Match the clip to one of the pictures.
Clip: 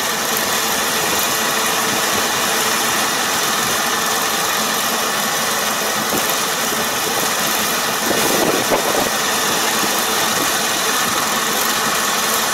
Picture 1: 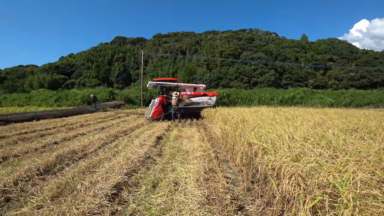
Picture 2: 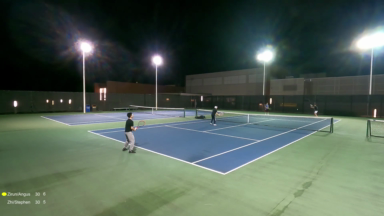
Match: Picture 1